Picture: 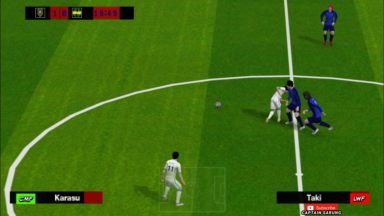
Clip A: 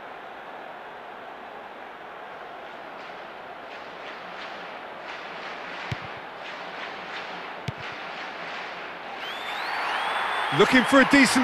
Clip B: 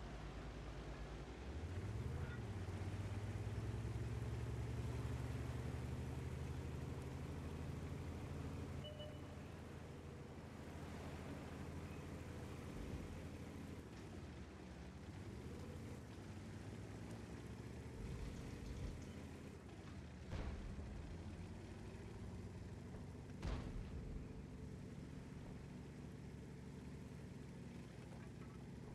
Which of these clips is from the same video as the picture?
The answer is A